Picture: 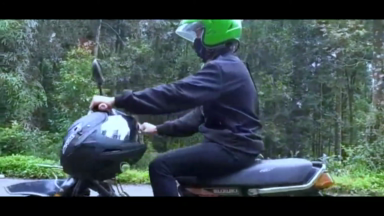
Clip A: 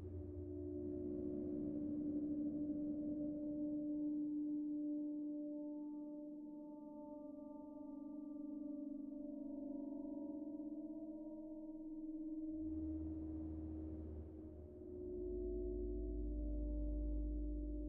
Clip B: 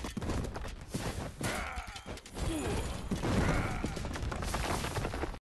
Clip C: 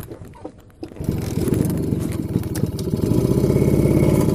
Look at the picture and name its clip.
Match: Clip C